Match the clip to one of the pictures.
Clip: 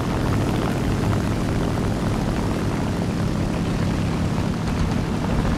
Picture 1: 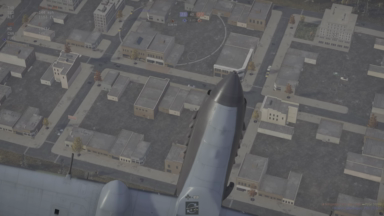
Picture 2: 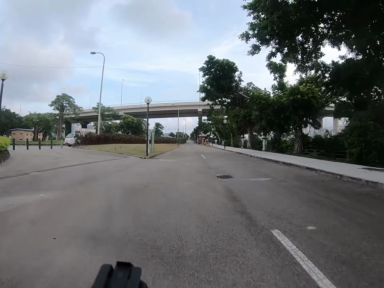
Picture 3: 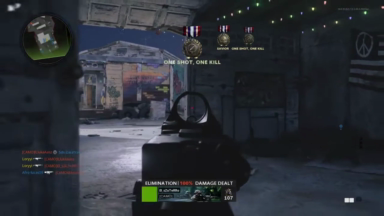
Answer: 1